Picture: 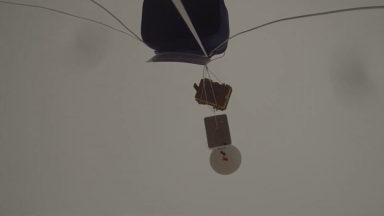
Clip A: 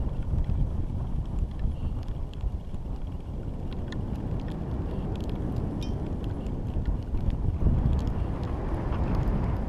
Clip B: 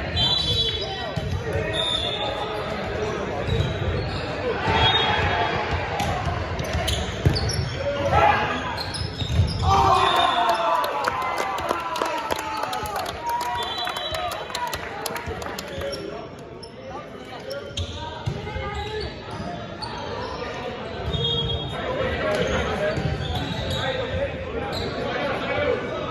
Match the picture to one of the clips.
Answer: A